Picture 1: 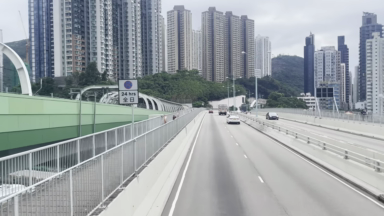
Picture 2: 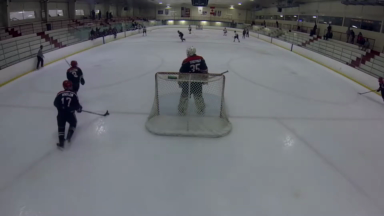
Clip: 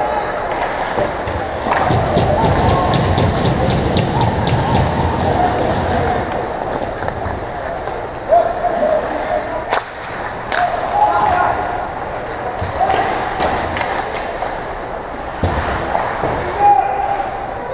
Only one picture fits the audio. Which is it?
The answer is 2